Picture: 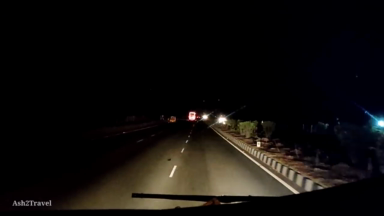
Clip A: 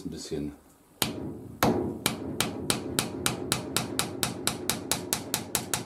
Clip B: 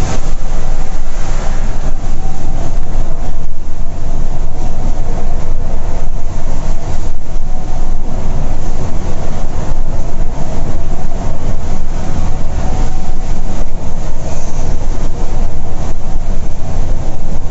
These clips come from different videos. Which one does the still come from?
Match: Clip B